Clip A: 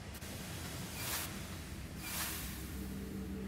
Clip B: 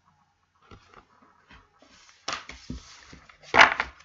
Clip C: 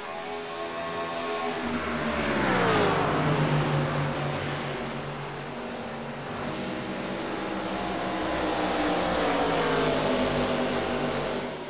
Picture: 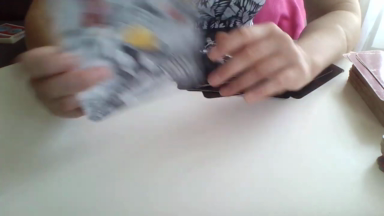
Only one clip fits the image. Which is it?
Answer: B